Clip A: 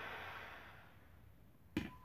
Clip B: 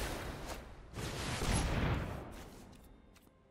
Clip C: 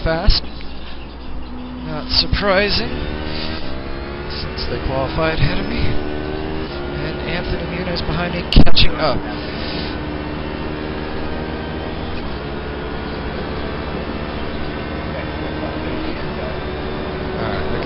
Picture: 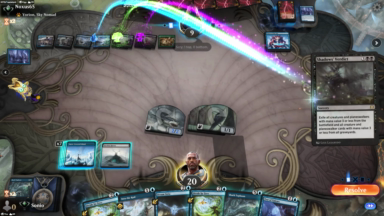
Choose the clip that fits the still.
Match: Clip B